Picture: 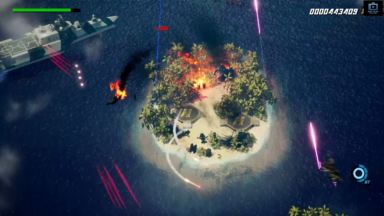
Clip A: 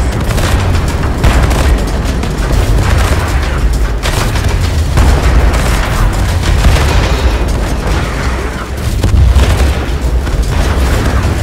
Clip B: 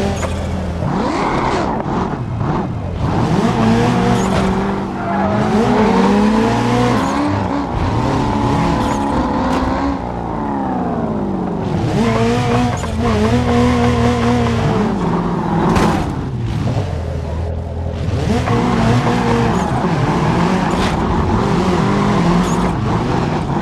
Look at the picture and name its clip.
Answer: A